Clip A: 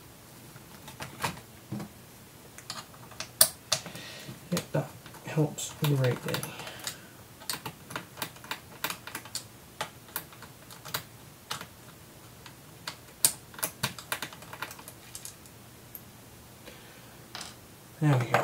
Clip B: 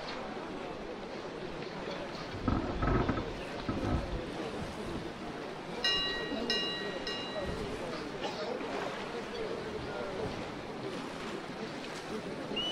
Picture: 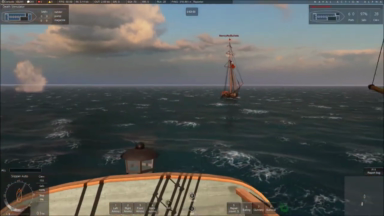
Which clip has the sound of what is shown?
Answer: B